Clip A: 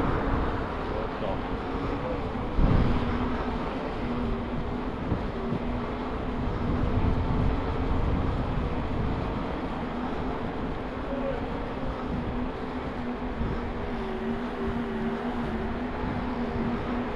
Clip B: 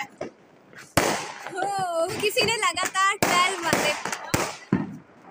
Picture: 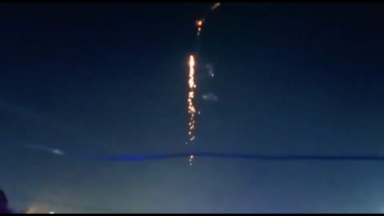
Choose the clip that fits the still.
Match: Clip B